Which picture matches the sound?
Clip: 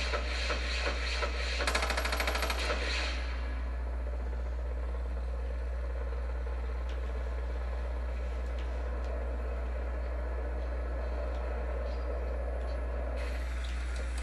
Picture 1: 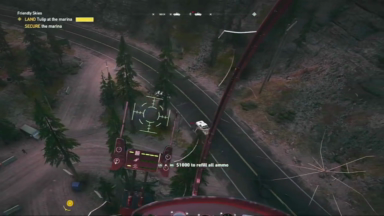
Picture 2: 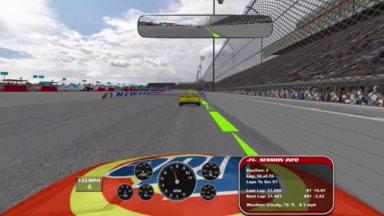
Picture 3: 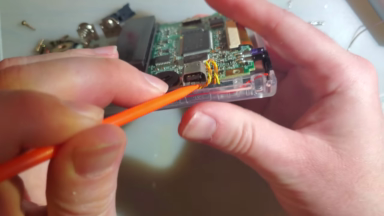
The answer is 1